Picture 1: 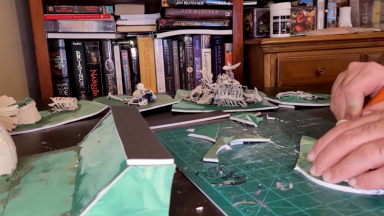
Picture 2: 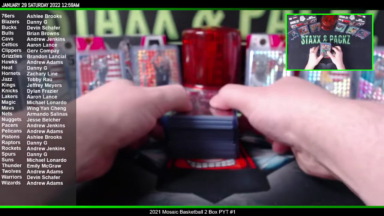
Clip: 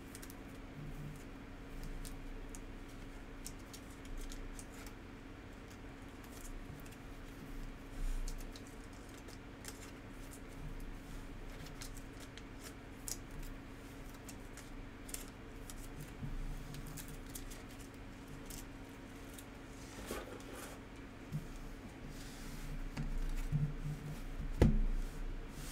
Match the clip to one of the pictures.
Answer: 2